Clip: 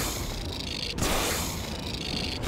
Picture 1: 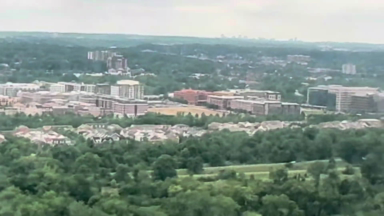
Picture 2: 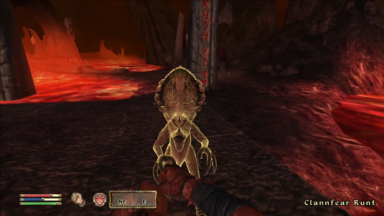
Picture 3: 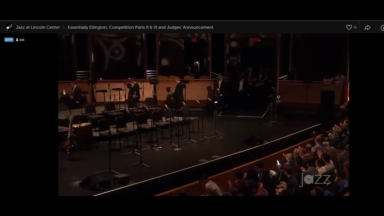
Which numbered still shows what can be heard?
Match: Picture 2